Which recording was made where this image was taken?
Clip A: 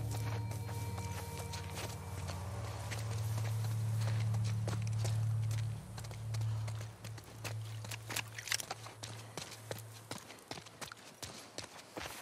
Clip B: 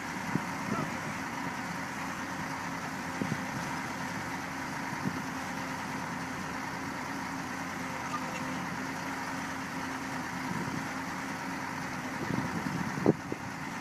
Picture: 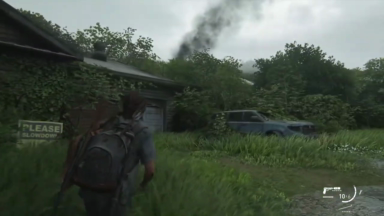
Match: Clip A